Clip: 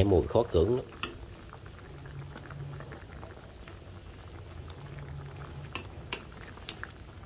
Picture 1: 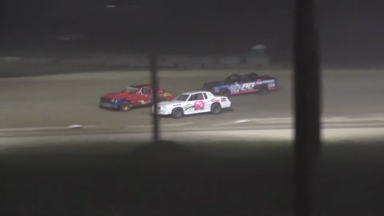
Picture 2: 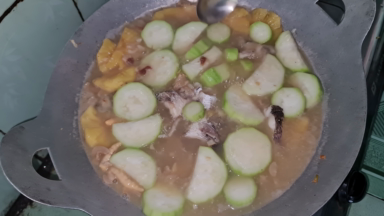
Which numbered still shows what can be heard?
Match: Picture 2